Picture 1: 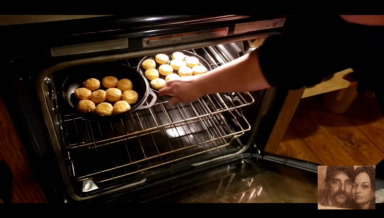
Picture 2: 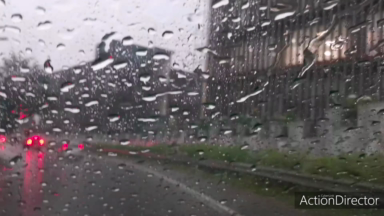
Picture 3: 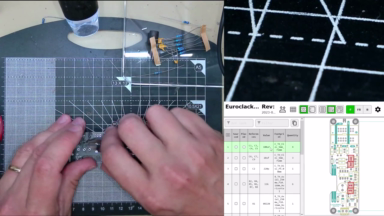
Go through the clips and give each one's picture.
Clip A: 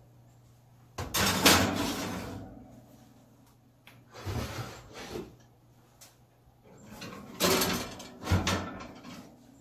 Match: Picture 1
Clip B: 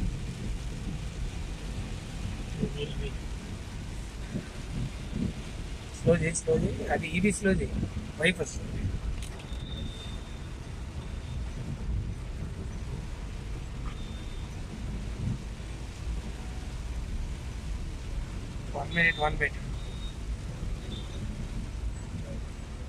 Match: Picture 2